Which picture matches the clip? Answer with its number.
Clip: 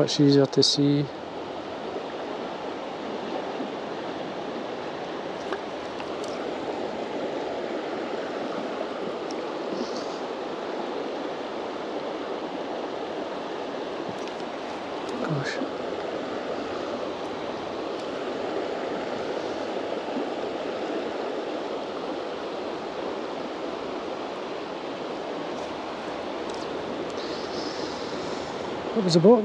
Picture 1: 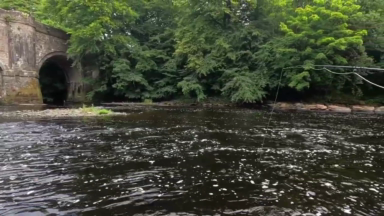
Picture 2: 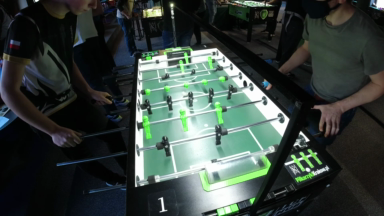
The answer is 1